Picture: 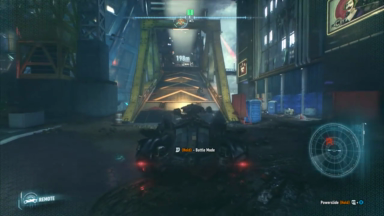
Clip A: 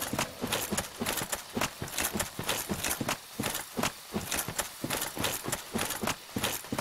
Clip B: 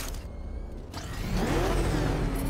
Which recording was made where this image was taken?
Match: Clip B